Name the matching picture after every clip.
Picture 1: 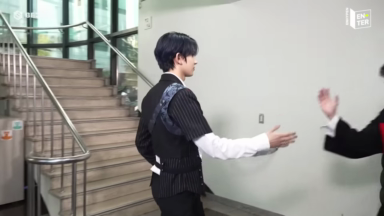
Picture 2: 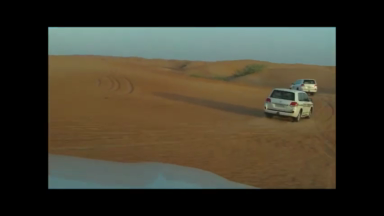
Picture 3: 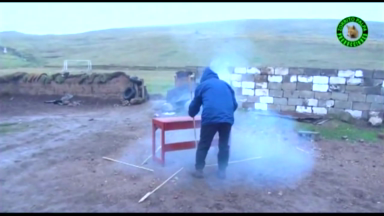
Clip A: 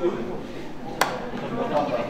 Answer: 1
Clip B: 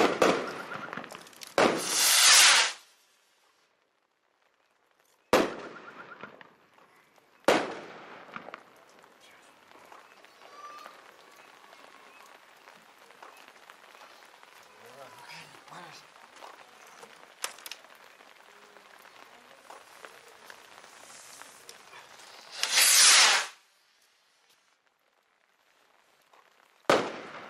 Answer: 3